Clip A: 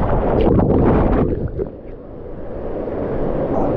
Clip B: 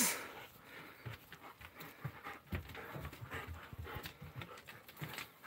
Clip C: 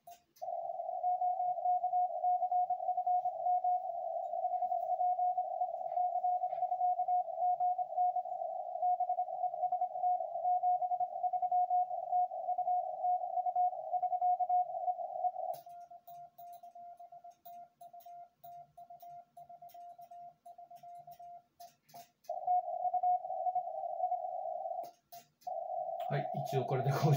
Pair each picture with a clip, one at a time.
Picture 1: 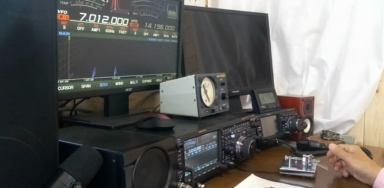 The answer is C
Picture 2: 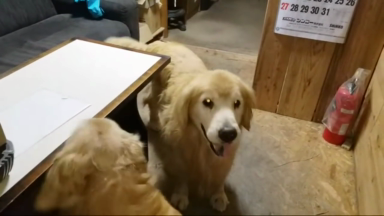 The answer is B